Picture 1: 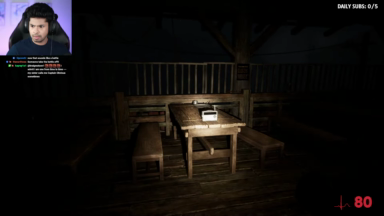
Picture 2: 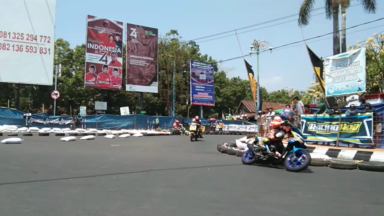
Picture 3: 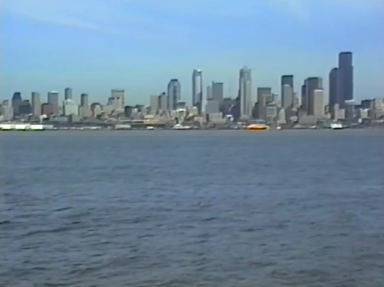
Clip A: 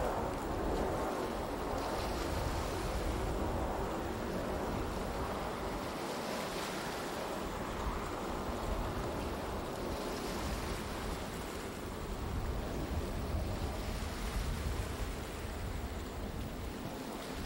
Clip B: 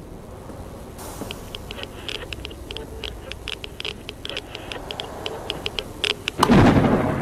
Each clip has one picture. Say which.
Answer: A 3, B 1